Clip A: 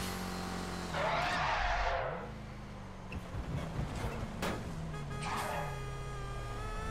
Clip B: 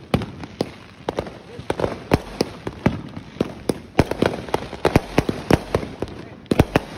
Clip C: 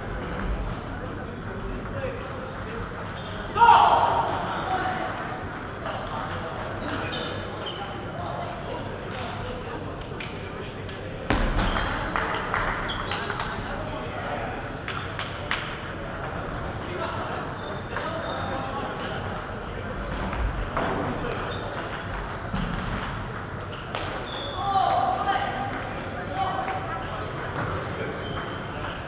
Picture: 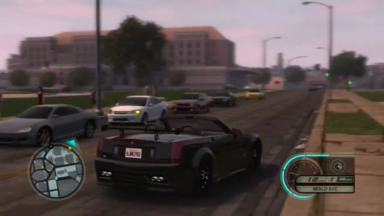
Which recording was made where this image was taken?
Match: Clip A